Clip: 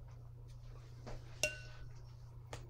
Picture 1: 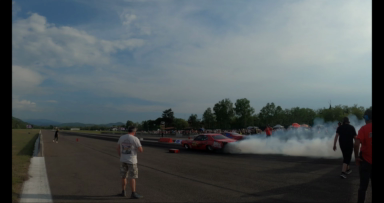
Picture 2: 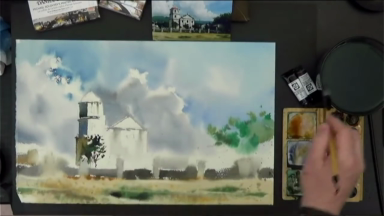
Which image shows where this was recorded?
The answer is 2